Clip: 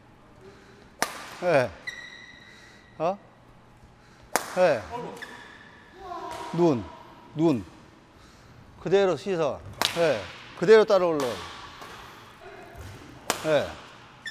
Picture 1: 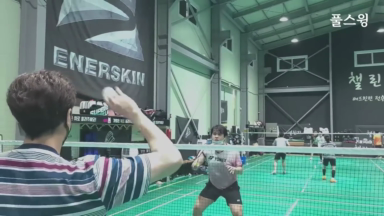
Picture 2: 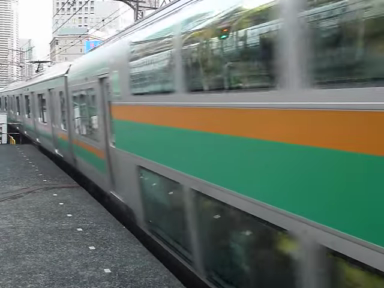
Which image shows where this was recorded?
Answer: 1